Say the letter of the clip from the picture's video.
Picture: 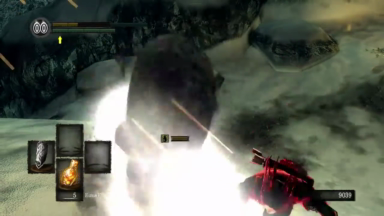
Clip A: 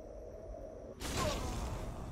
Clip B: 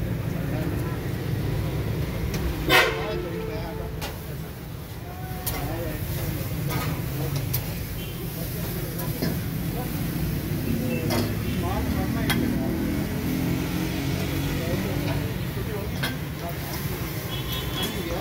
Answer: A